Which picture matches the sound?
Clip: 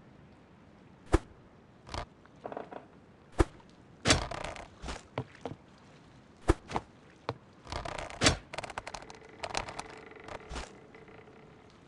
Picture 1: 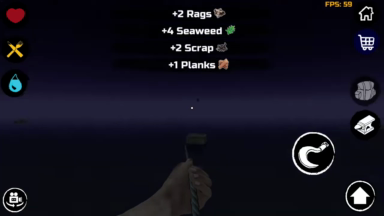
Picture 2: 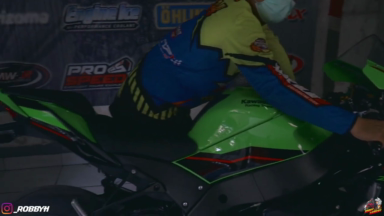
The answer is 1